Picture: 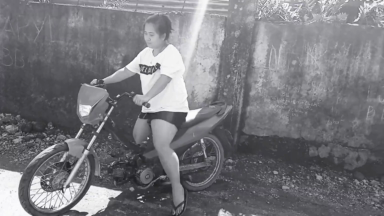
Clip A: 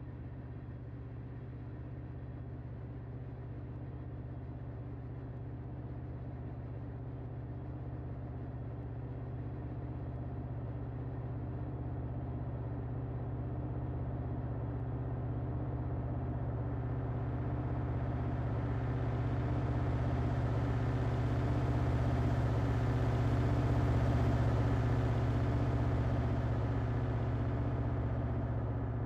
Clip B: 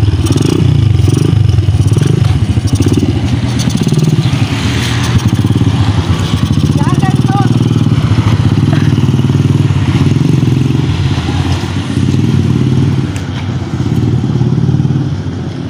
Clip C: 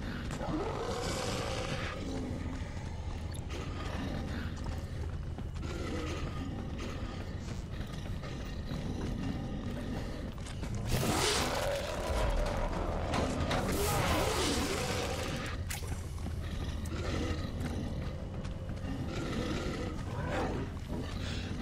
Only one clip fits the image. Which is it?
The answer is B